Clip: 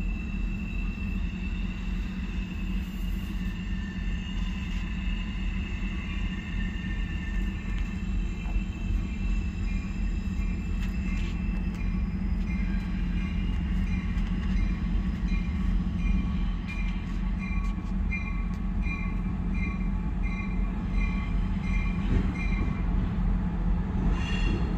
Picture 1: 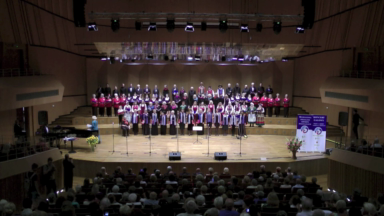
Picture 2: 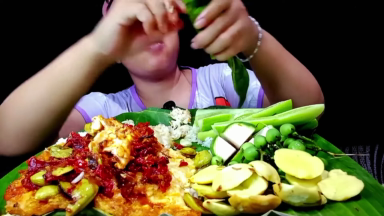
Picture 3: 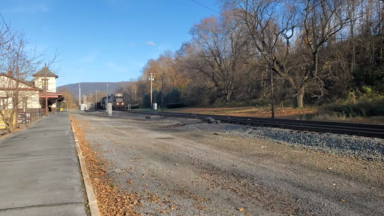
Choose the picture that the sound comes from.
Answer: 3